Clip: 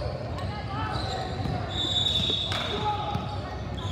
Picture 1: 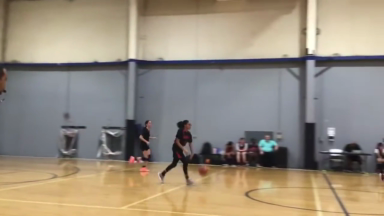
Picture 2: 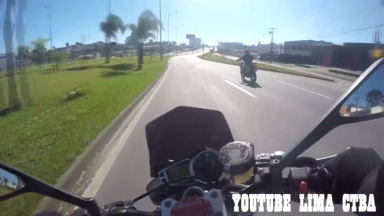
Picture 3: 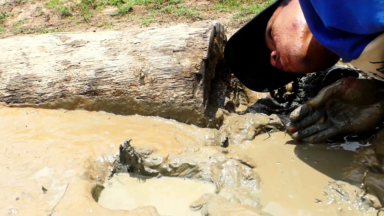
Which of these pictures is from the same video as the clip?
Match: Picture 1